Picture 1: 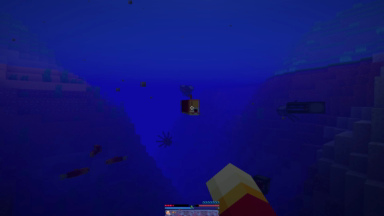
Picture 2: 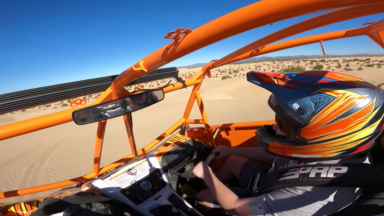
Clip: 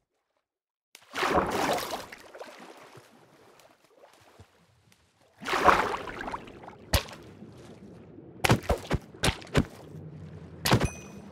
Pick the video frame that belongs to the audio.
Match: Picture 1